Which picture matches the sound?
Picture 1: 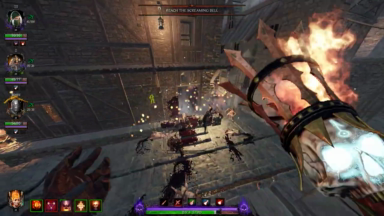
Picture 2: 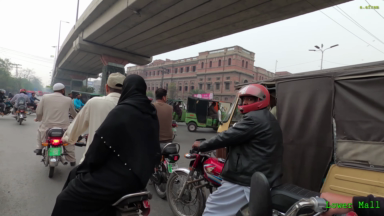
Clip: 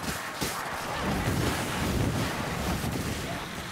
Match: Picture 1